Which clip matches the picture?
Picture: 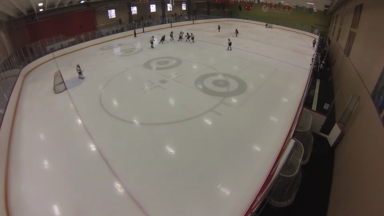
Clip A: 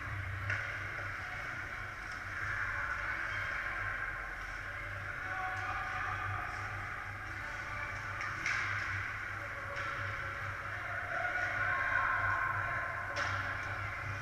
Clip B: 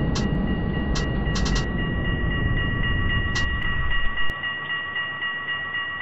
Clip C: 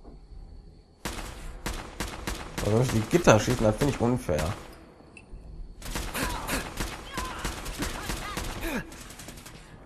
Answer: A